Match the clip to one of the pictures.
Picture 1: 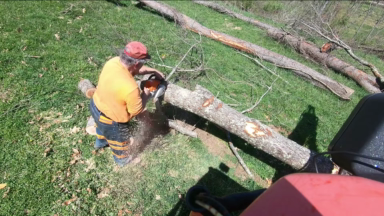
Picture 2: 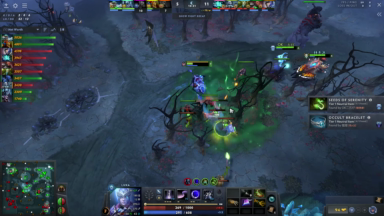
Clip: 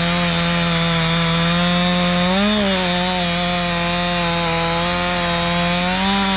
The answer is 1